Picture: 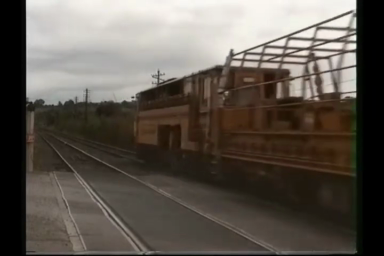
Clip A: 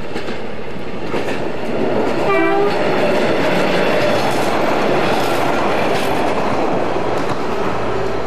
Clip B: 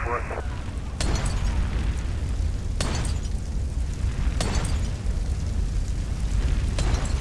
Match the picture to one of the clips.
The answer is A